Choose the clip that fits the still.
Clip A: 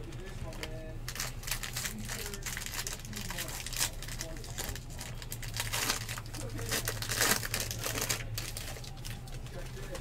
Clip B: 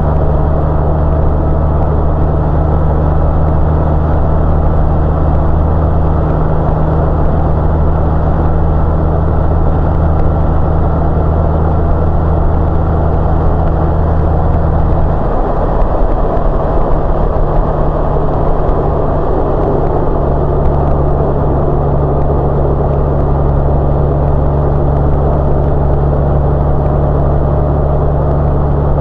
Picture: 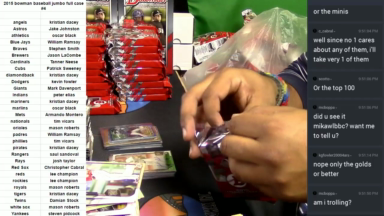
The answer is A